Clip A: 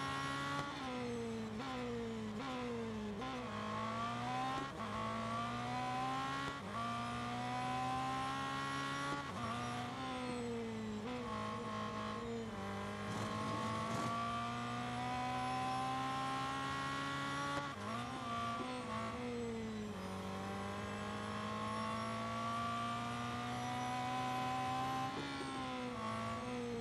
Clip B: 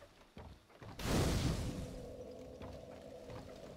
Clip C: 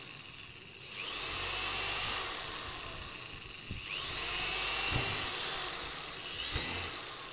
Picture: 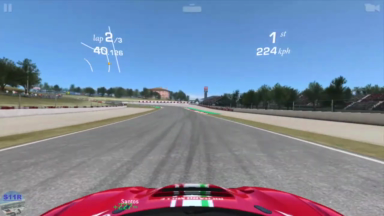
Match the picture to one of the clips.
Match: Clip A